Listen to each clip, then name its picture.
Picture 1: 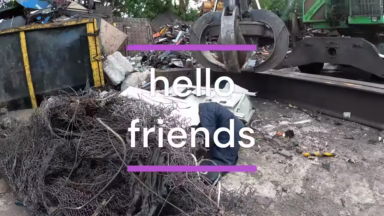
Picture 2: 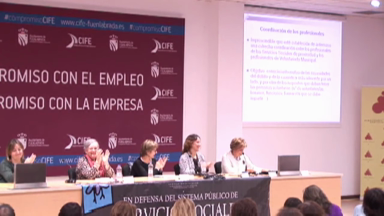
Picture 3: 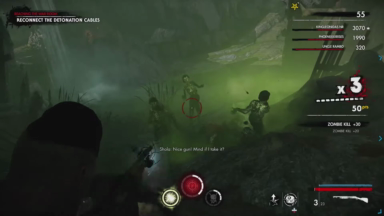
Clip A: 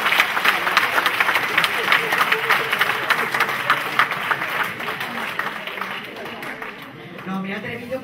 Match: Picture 2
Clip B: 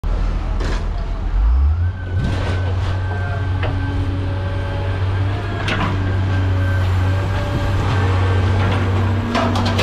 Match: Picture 1